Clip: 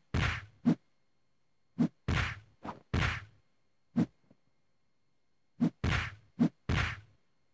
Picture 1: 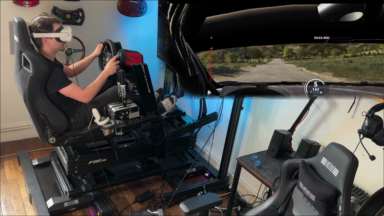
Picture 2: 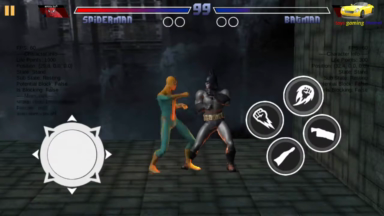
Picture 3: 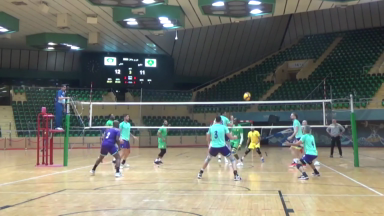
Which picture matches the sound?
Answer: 2